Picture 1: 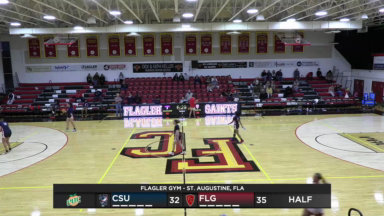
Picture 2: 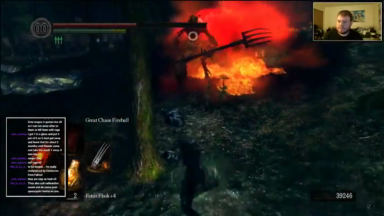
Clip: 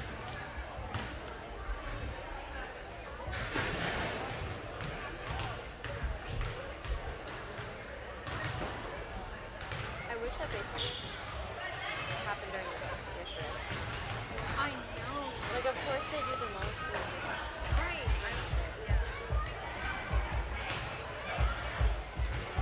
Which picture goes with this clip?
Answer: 1